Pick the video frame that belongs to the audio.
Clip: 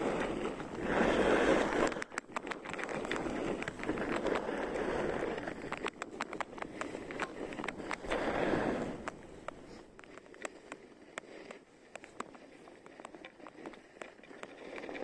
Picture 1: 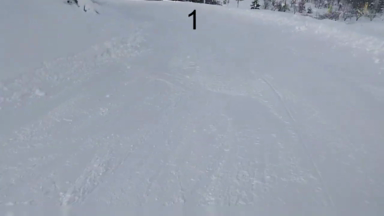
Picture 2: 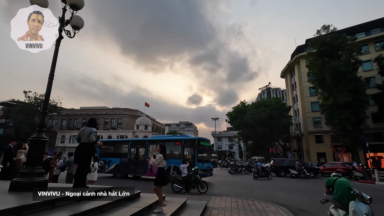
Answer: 1